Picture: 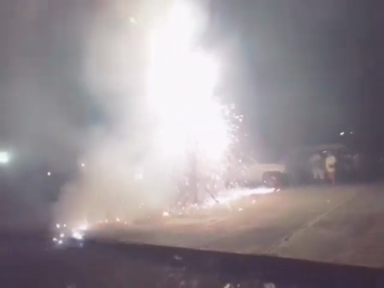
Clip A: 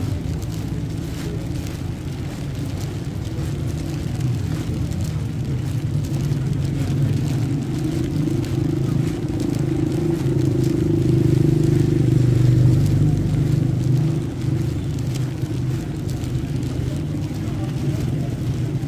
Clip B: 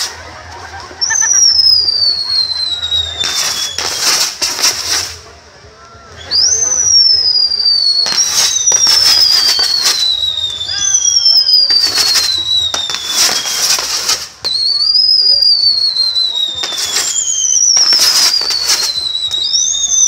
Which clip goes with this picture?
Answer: B